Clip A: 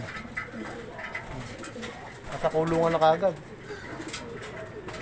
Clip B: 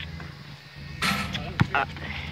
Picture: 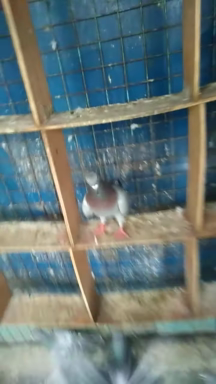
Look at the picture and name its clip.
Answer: A